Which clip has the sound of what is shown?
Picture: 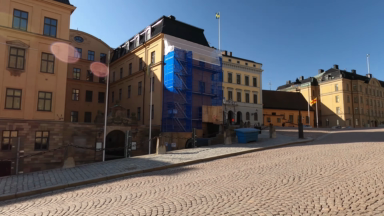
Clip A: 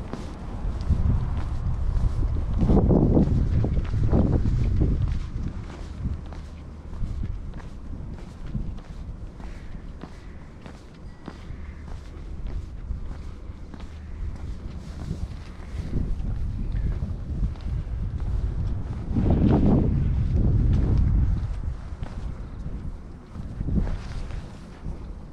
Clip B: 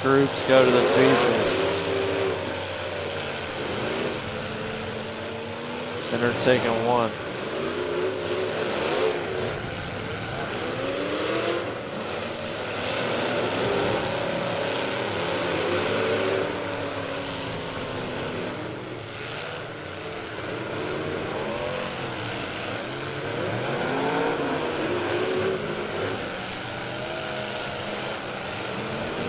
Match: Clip A